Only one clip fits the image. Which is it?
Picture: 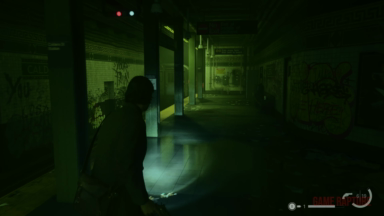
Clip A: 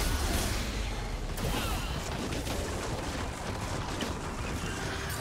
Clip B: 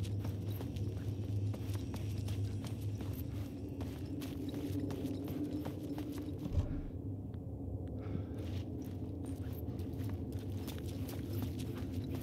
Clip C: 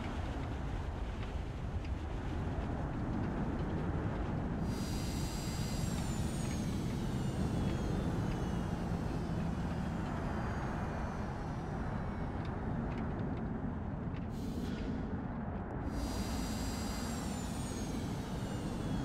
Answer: B